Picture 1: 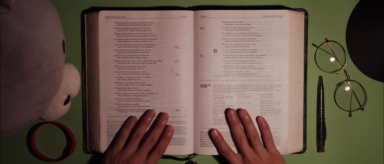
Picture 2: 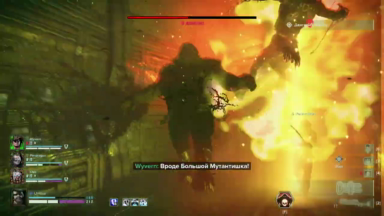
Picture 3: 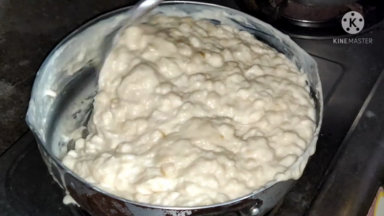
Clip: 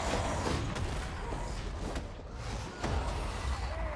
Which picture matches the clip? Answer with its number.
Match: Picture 2